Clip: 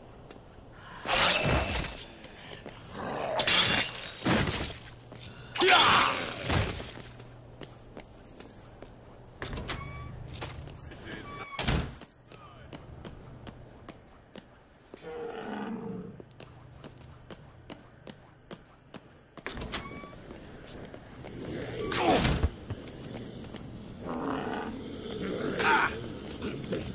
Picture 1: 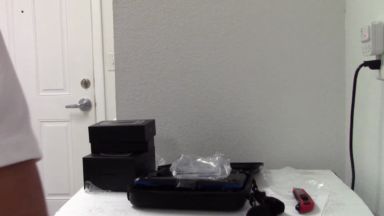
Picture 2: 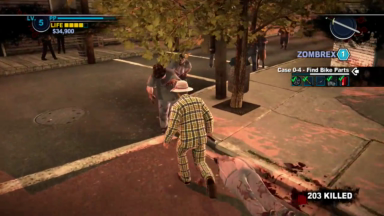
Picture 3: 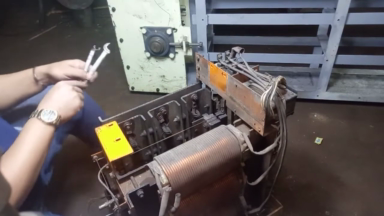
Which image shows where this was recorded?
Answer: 2